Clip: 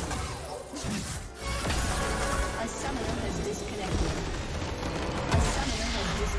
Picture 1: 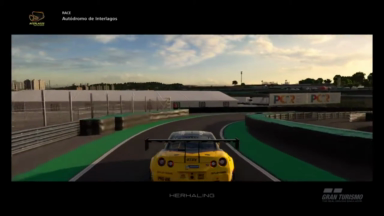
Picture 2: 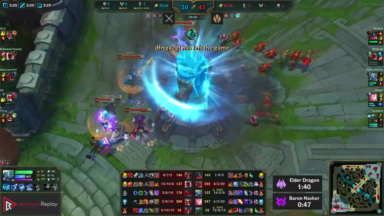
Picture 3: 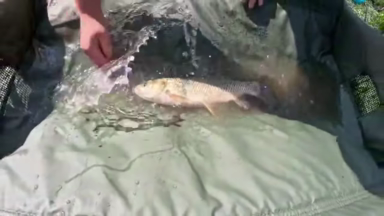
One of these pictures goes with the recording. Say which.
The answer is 2